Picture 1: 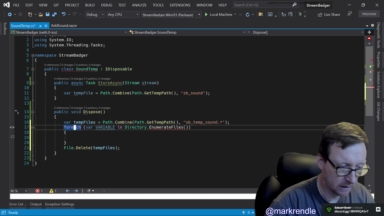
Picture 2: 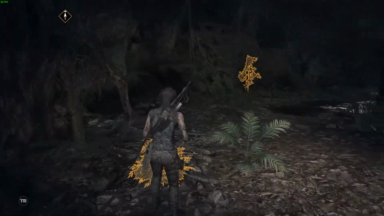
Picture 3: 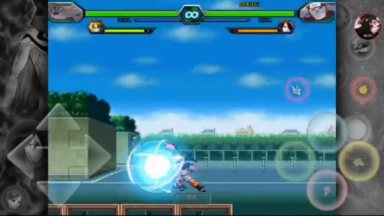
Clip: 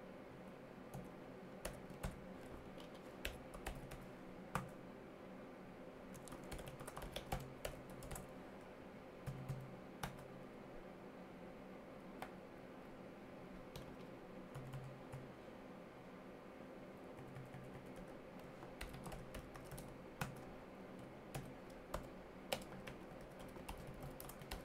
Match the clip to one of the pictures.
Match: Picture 1